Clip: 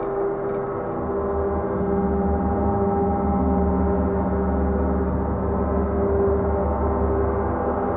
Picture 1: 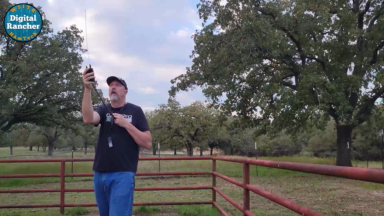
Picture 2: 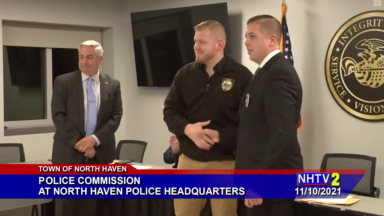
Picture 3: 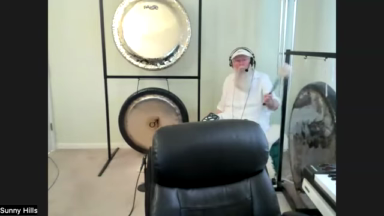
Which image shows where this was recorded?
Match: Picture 3